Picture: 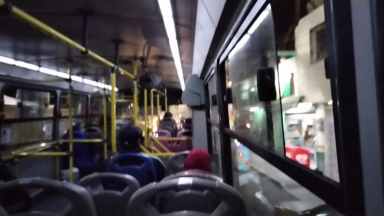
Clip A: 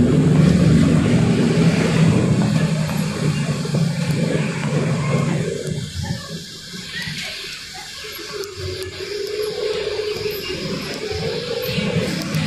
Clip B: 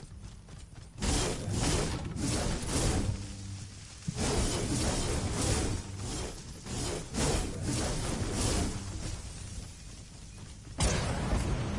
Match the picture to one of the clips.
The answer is A